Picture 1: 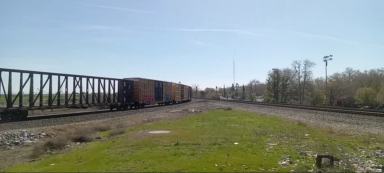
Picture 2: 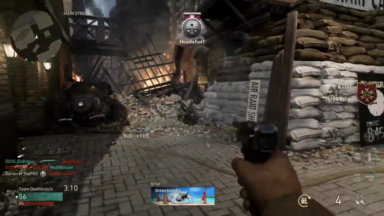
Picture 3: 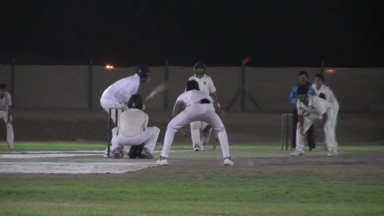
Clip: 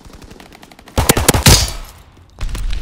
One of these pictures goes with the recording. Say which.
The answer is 2